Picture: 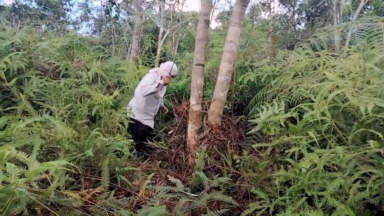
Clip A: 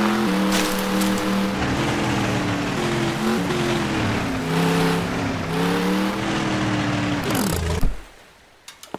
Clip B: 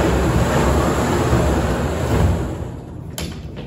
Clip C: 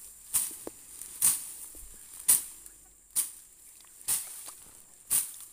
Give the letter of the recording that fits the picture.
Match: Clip C